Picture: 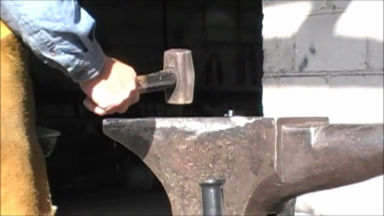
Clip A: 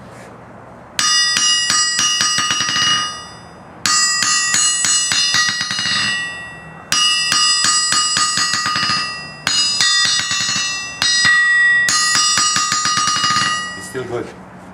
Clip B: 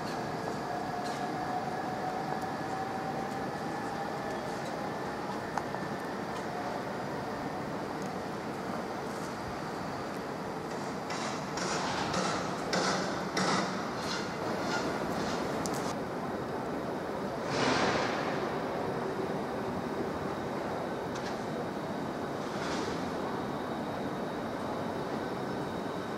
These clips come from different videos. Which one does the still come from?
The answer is A